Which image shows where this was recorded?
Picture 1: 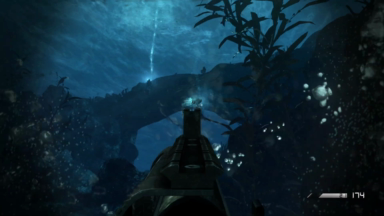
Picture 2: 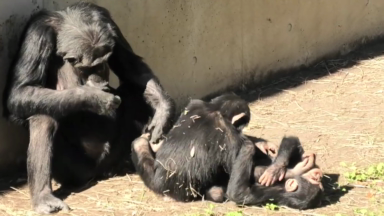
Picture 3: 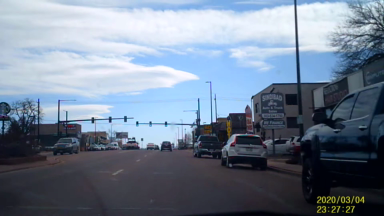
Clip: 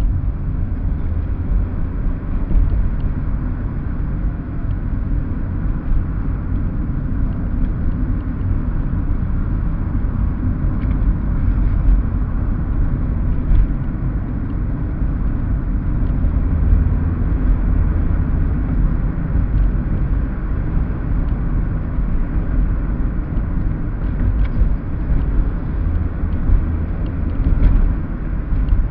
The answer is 3